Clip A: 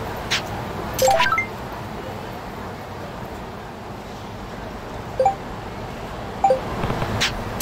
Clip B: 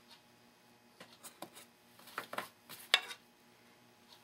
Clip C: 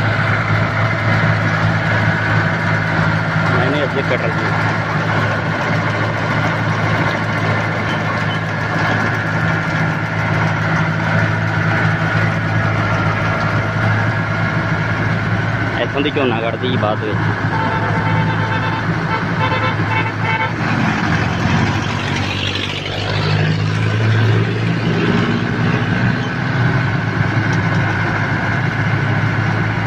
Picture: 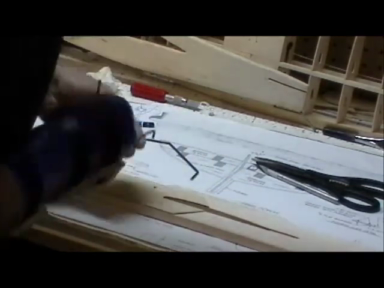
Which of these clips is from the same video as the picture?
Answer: B